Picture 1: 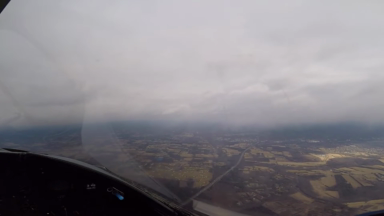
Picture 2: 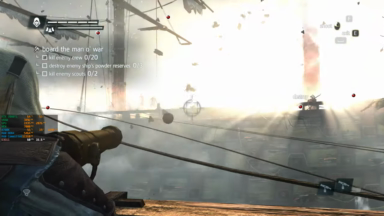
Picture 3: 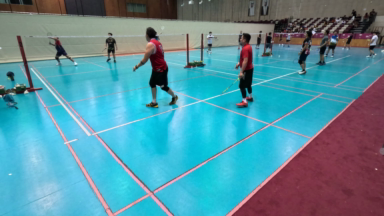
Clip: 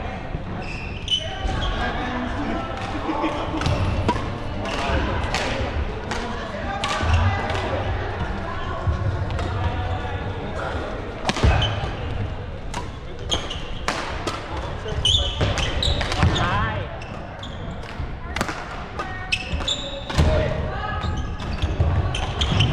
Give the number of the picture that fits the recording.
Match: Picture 3